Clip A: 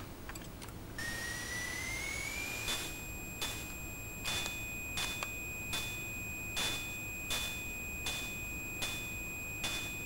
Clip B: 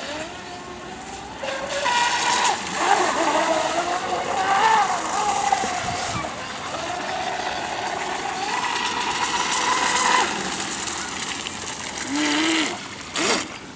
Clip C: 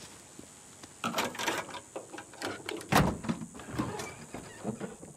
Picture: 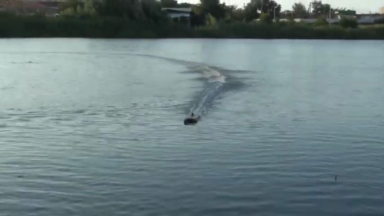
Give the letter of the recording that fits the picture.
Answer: B